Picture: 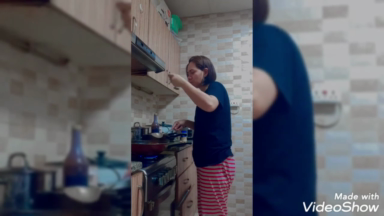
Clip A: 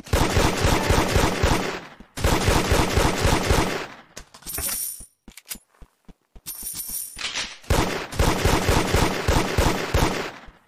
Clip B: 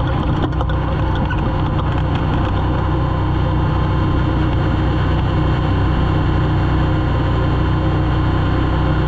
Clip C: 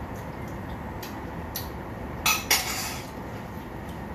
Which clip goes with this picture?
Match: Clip C